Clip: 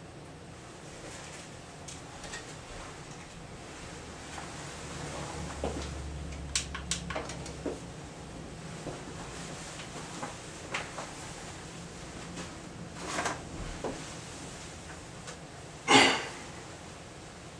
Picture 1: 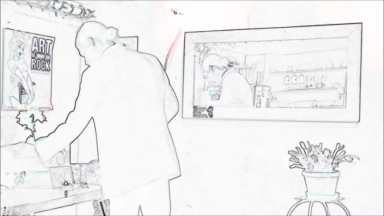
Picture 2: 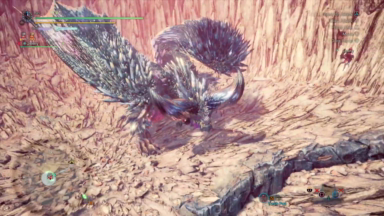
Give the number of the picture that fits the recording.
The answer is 1